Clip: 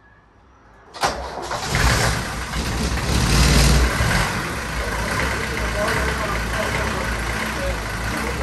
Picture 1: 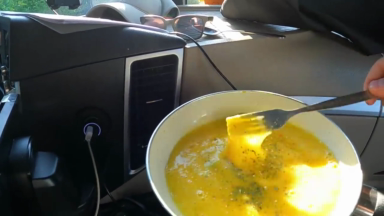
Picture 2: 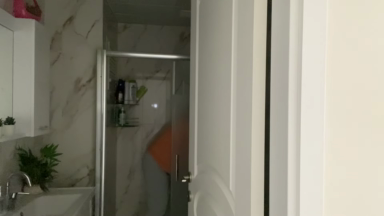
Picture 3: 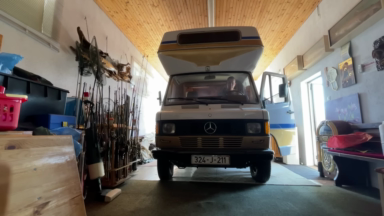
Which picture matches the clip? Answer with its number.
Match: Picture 3